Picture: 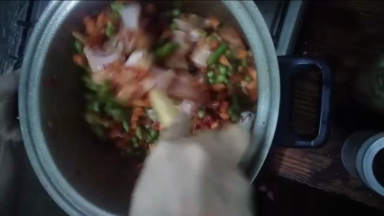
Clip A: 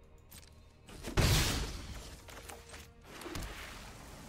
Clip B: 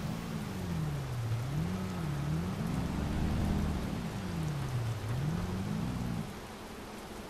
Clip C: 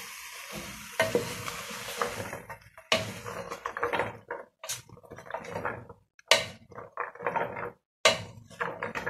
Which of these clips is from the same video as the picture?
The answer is C